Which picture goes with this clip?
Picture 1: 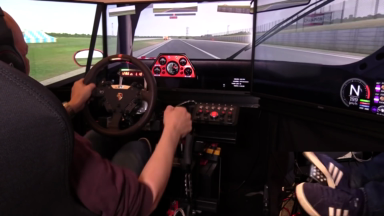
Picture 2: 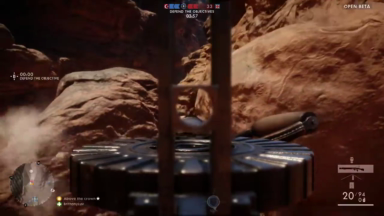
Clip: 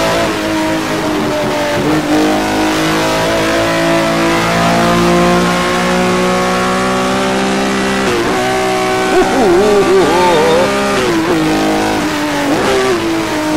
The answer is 1